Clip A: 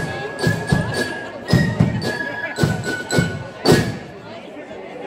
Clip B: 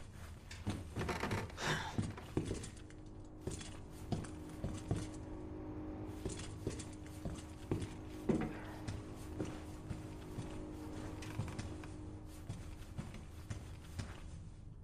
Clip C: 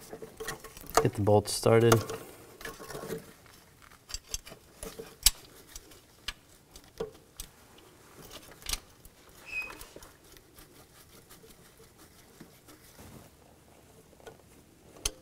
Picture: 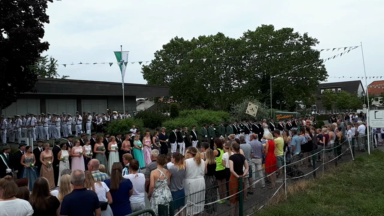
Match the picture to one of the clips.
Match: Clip A